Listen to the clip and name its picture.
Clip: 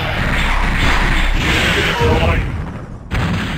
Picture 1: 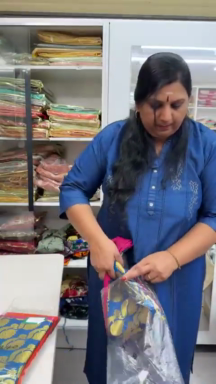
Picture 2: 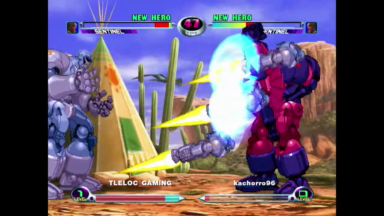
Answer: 2